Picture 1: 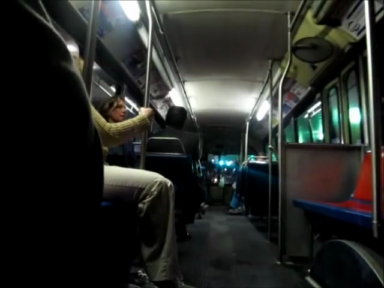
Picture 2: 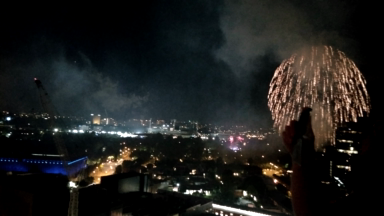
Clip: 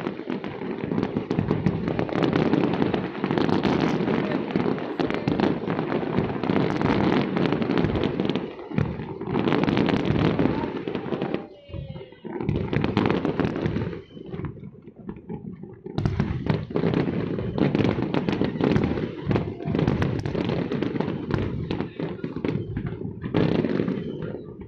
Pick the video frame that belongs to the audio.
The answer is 2